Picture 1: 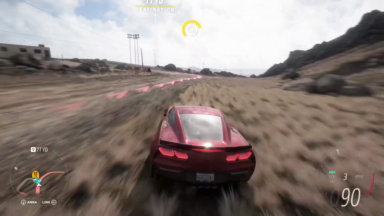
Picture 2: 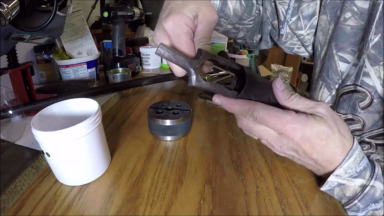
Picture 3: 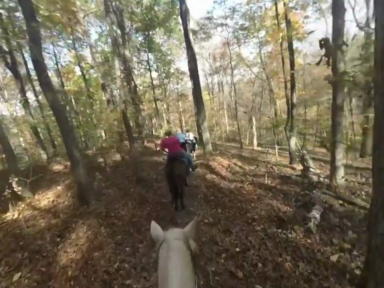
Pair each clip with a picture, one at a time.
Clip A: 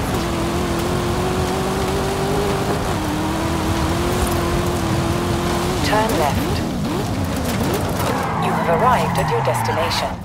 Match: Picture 1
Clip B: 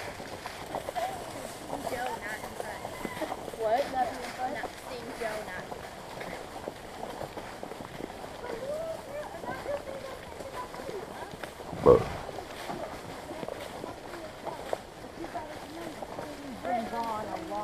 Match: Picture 3